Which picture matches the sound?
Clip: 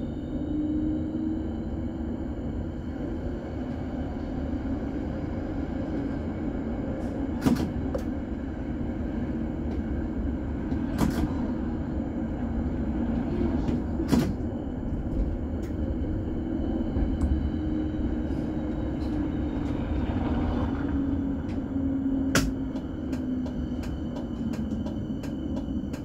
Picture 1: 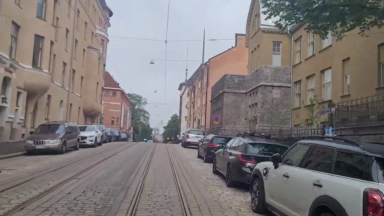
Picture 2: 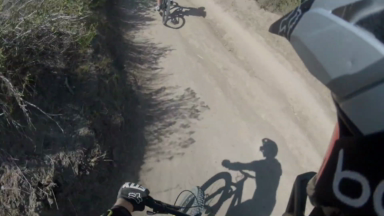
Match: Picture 1